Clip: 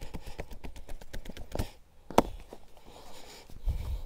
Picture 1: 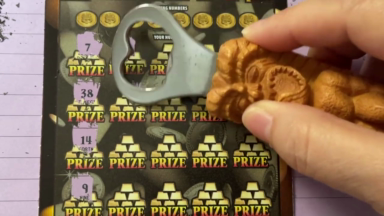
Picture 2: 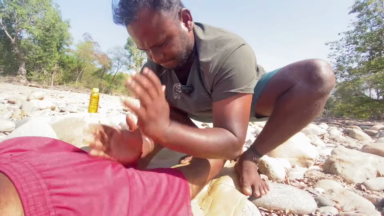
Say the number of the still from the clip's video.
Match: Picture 2